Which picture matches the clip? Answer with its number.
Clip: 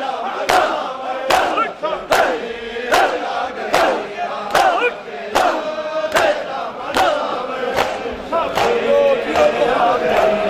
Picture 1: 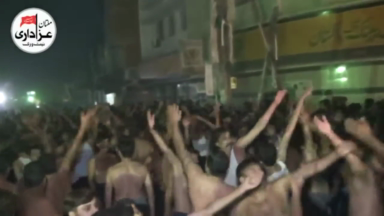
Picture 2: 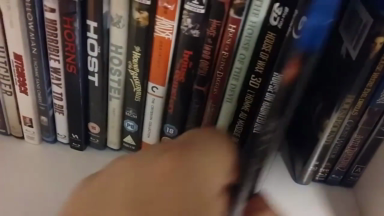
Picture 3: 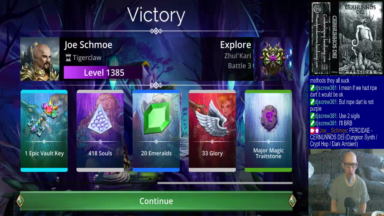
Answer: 1